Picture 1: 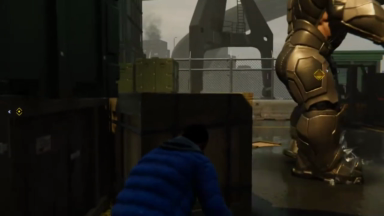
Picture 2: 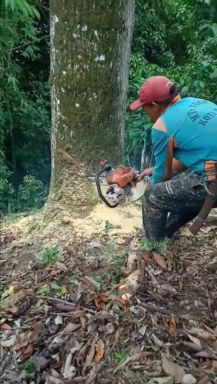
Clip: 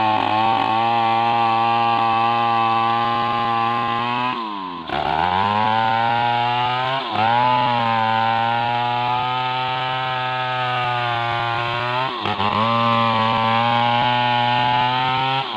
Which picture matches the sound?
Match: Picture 2